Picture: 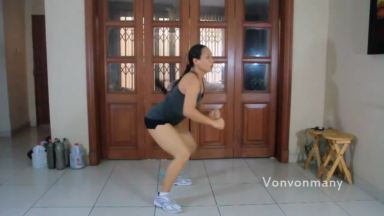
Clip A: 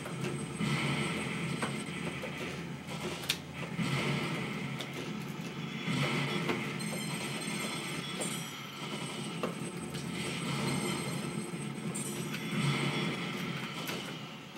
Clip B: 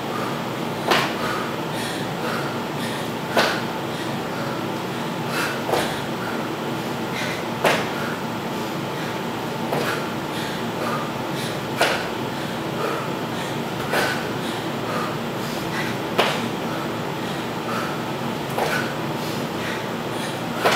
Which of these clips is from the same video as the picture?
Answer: B